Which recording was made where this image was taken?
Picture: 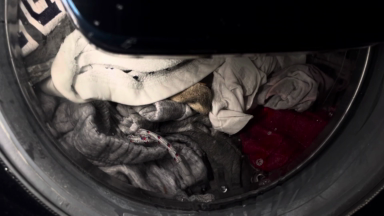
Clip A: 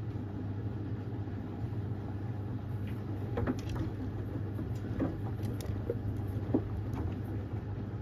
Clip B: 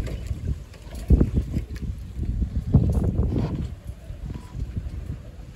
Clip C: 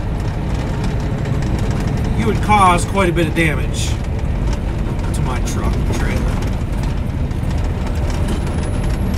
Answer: A